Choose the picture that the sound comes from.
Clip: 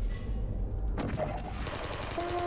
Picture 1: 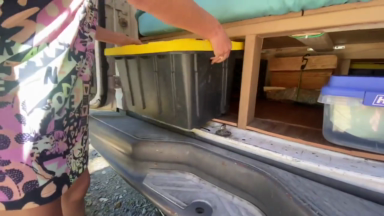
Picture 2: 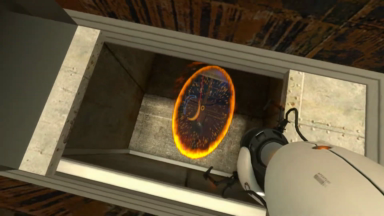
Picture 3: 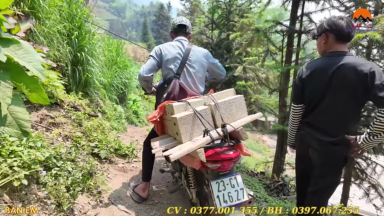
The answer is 2